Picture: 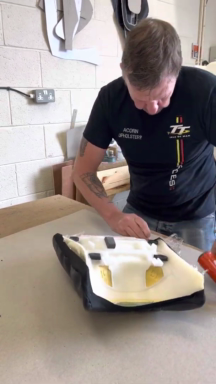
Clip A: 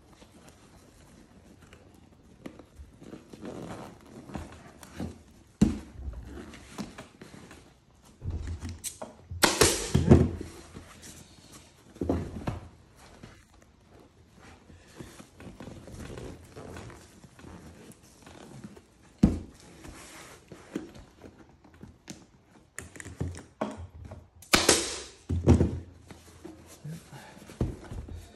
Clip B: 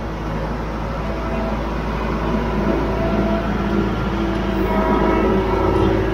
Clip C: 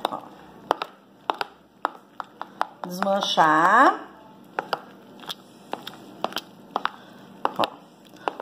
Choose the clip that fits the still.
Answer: A